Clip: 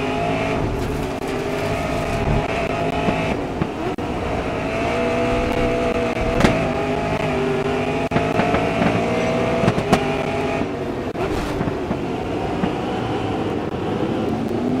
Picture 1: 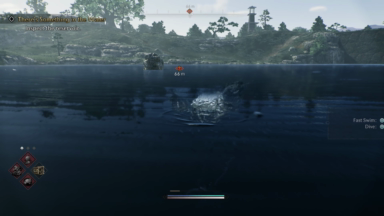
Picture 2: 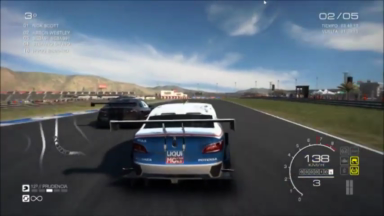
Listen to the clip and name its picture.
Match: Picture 2